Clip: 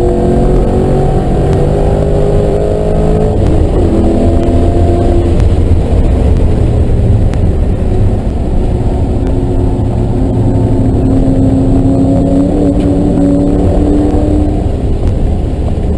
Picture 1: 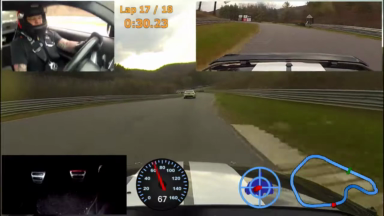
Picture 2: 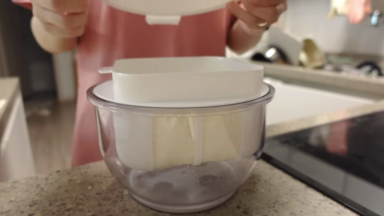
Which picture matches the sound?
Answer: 1